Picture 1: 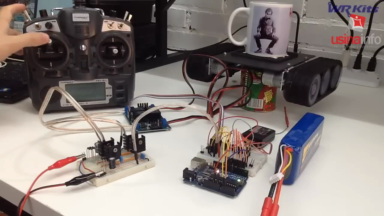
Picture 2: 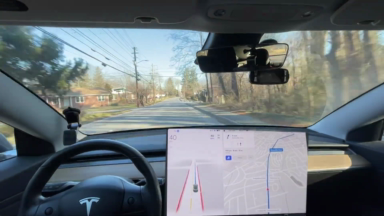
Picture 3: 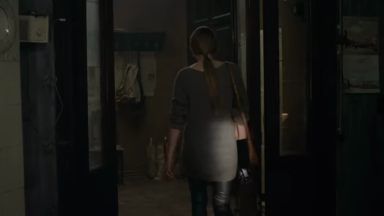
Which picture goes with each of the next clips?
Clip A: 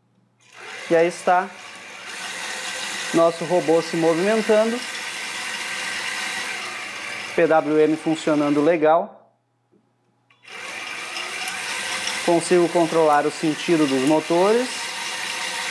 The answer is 1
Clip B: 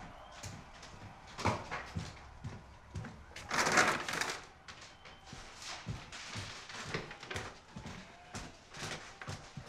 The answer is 3